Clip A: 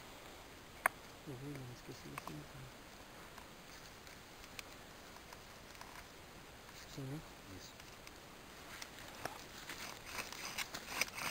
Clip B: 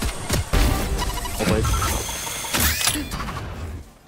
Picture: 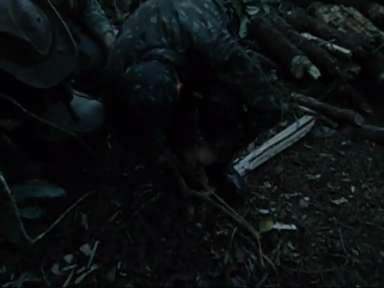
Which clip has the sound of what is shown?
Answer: A